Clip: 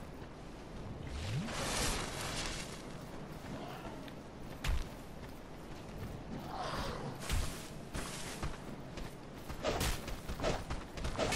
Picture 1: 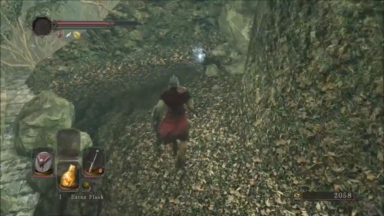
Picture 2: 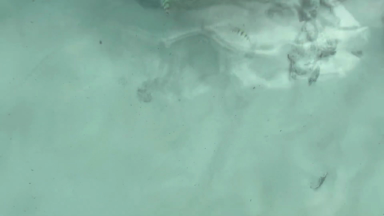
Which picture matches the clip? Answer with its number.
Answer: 1